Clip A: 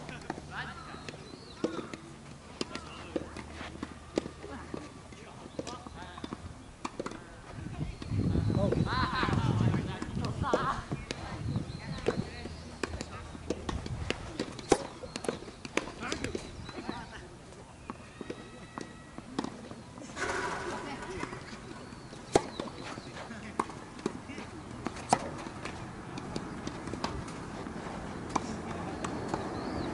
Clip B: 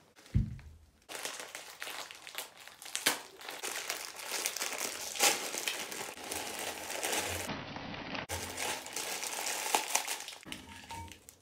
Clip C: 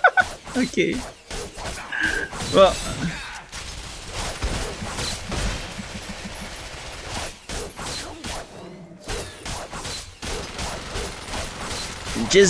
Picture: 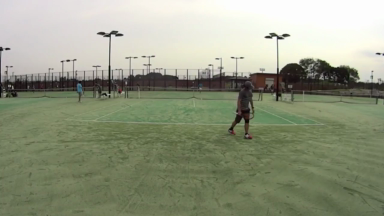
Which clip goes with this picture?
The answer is A